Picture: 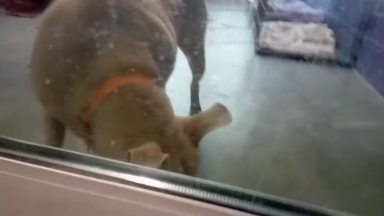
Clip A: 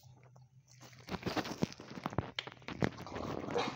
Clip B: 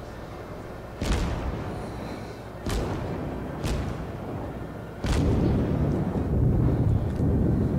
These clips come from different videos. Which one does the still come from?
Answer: A